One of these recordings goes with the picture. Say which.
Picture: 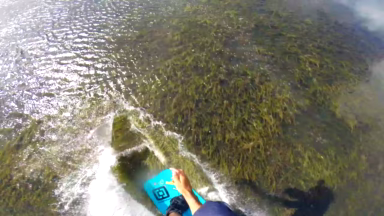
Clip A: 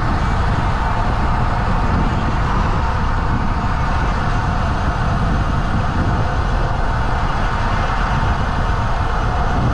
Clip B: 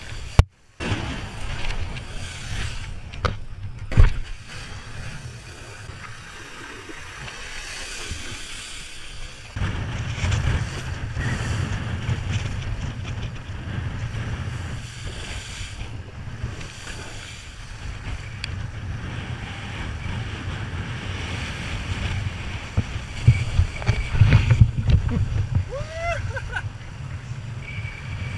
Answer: B